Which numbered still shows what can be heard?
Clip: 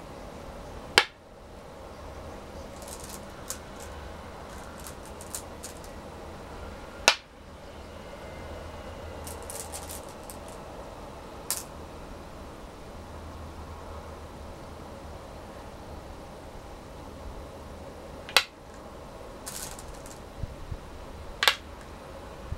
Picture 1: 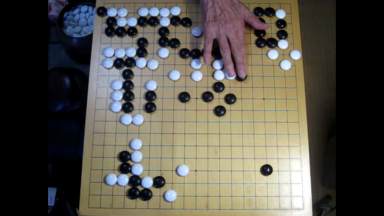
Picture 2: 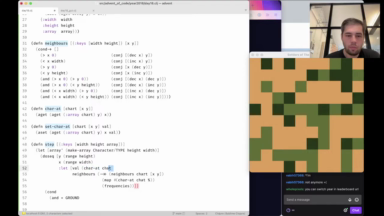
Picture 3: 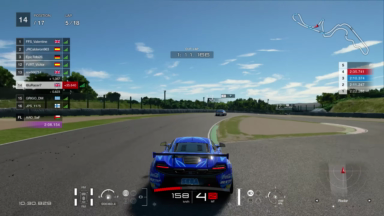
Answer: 1